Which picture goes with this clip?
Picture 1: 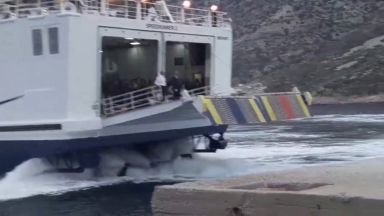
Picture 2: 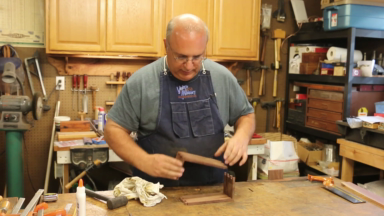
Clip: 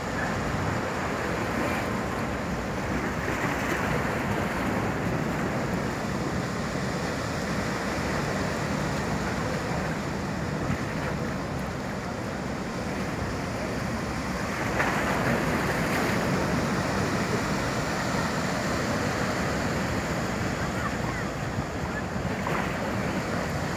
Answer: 1